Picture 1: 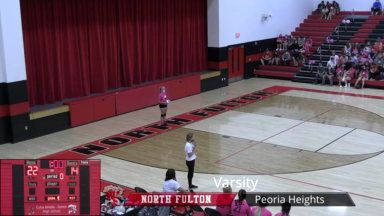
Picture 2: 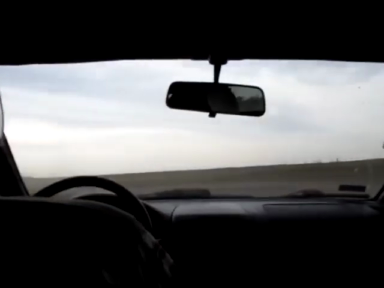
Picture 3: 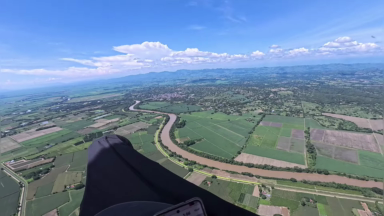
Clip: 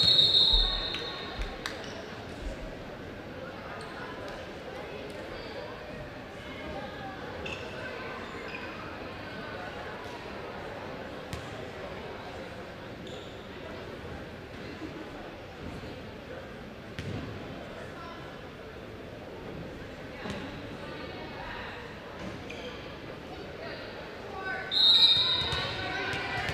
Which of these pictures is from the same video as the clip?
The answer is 1